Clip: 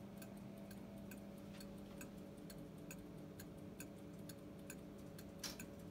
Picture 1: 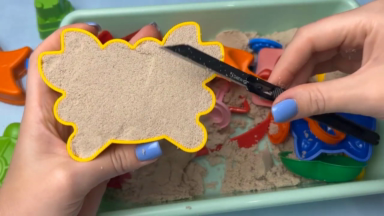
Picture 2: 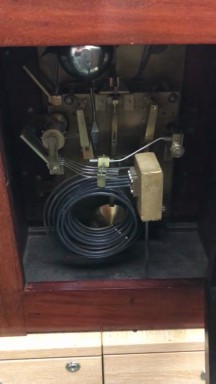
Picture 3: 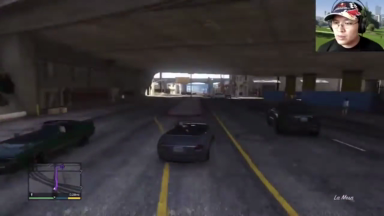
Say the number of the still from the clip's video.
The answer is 2